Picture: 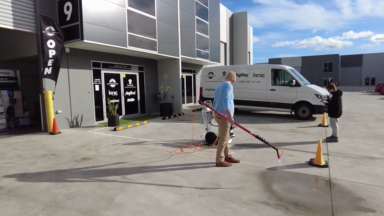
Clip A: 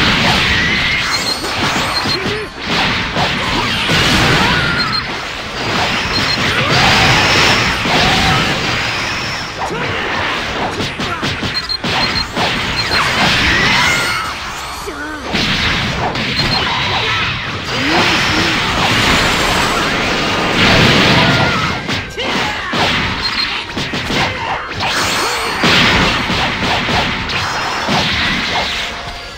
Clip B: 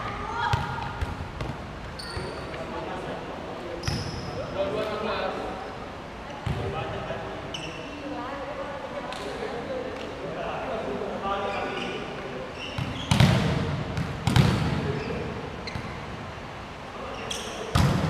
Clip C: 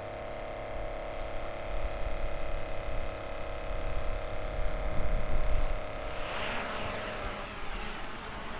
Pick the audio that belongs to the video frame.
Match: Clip C